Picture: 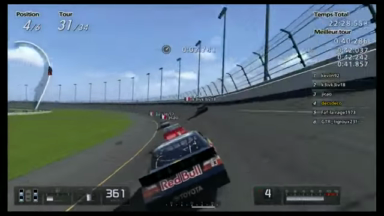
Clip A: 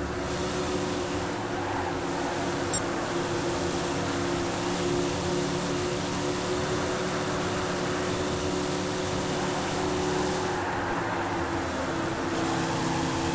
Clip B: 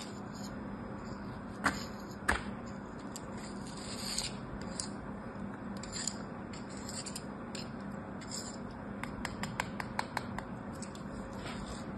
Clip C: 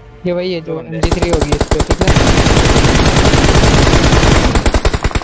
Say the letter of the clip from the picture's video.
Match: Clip A